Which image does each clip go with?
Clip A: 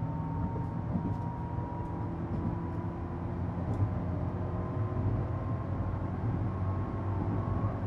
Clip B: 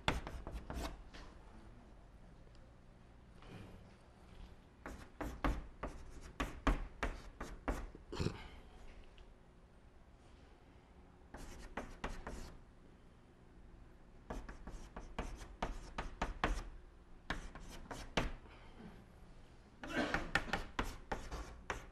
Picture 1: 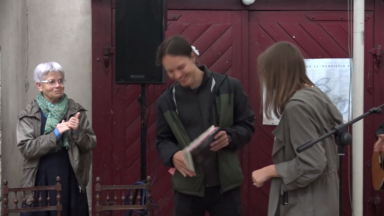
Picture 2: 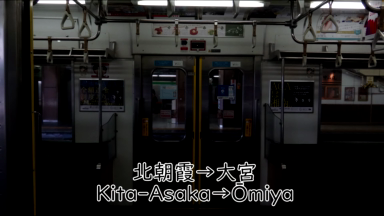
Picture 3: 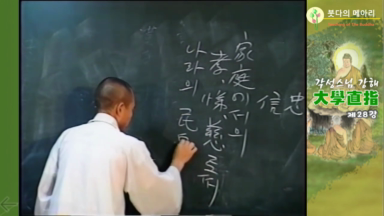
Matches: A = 2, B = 3